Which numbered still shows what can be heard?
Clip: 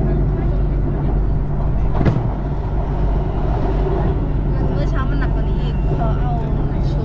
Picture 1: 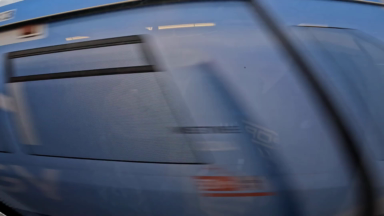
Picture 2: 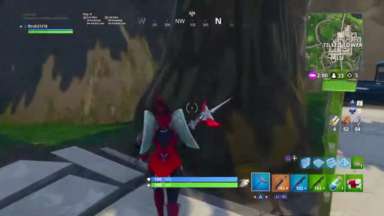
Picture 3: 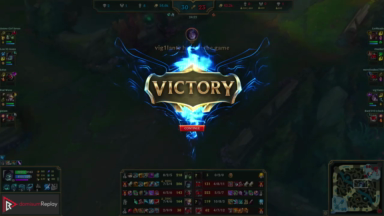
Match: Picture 1